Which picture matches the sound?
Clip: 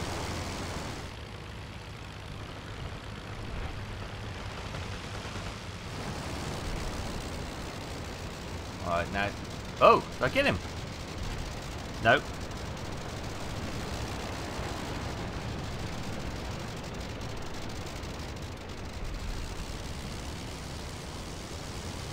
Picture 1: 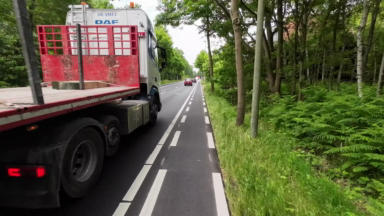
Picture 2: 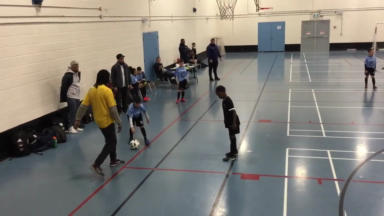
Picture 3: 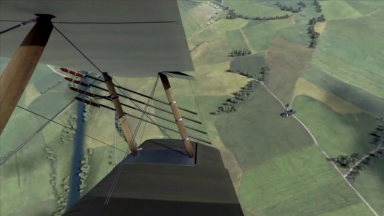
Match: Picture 3